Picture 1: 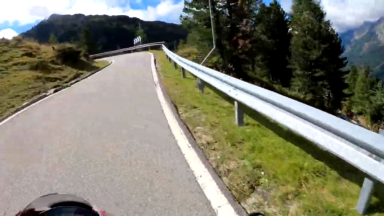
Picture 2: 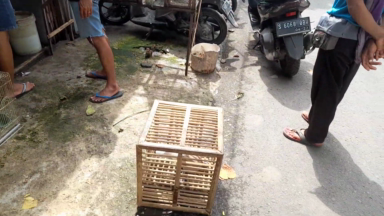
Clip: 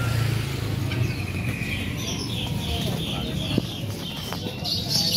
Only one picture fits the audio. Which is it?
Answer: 2